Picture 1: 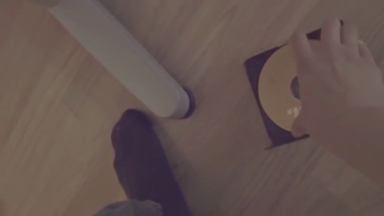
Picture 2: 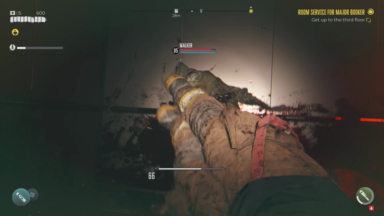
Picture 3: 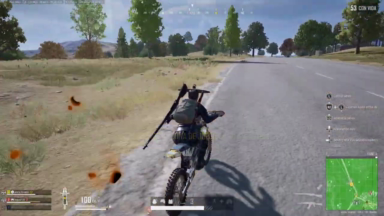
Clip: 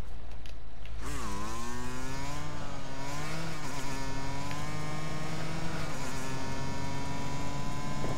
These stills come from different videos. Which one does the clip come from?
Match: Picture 3